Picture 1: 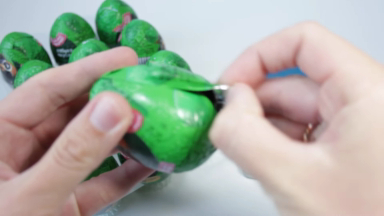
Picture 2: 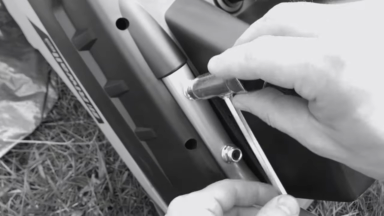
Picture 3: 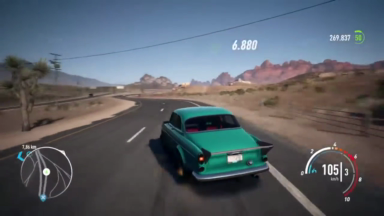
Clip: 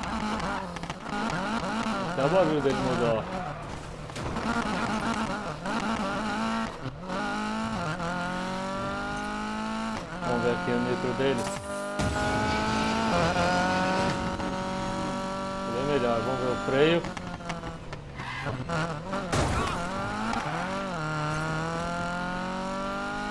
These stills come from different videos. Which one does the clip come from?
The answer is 3